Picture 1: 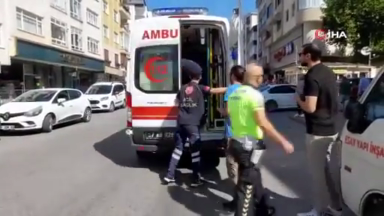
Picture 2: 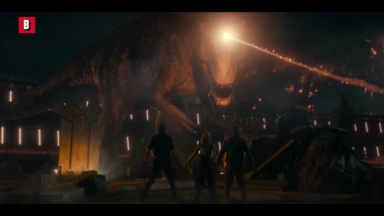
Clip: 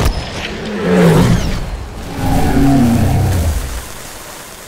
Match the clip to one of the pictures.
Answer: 2